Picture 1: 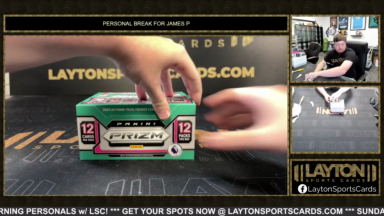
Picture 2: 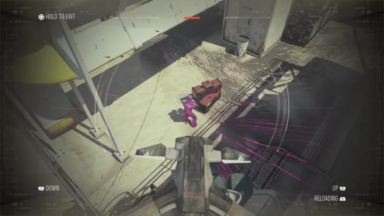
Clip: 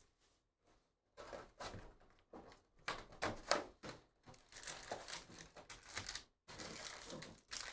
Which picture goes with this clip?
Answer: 1